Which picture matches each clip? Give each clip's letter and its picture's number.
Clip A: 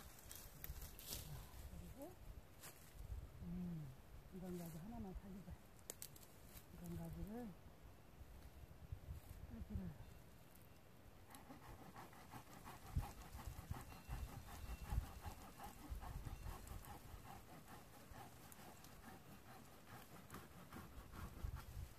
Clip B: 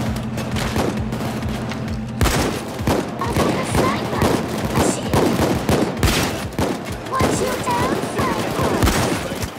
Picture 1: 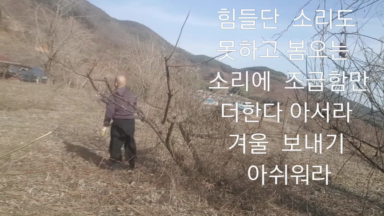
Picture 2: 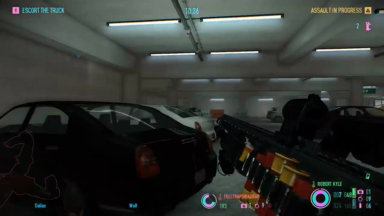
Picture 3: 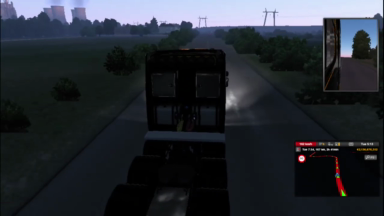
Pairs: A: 1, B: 2